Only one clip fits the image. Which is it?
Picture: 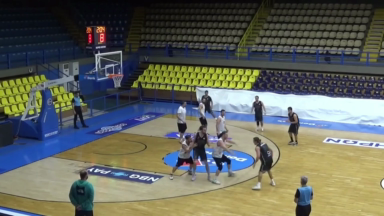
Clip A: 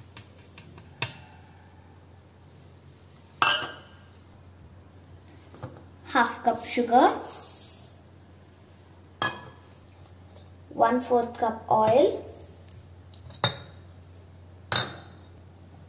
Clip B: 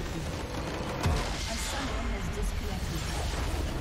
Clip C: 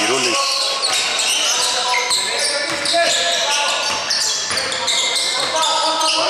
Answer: C